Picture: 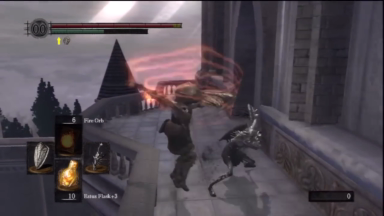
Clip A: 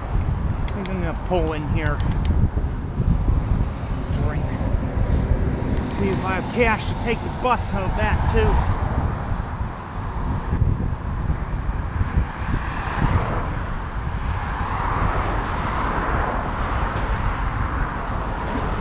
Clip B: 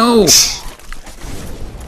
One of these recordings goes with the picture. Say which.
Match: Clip B